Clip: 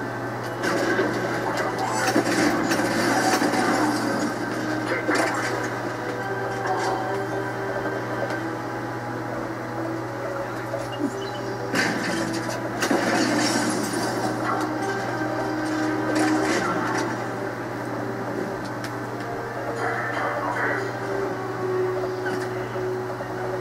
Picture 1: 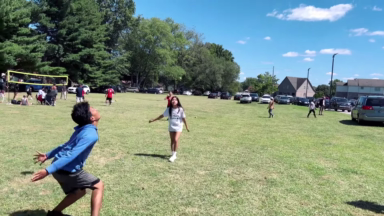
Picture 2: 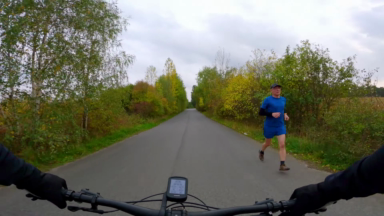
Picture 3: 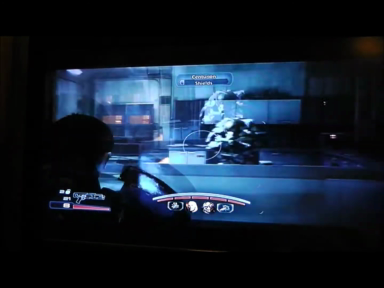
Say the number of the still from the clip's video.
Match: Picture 3